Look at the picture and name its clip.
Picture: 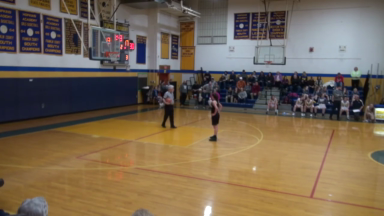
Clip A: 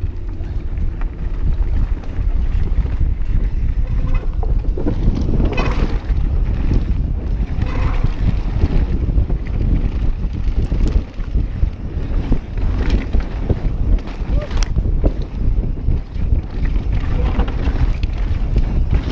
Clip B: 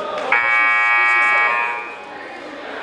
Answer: B